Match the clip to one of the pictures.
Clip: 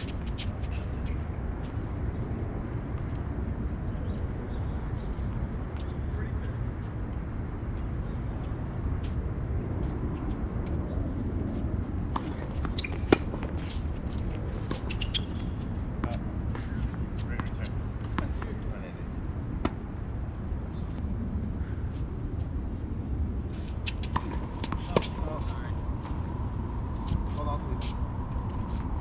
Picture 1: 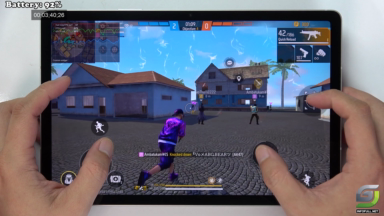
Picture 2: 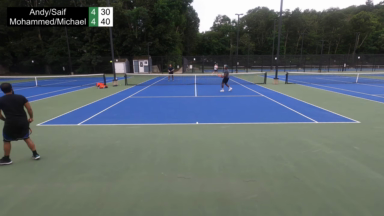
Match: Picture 2